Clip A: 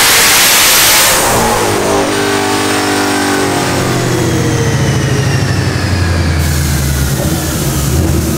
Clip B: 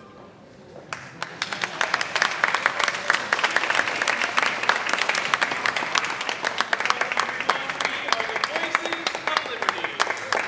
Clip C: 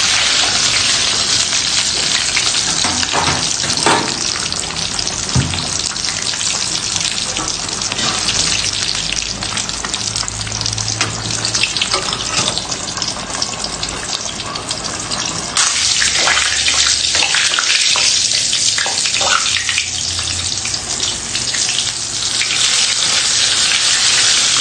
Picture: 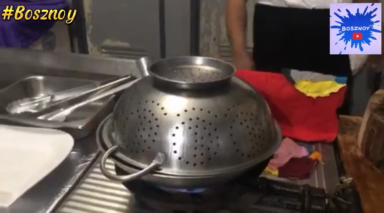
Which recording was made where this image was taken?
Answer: C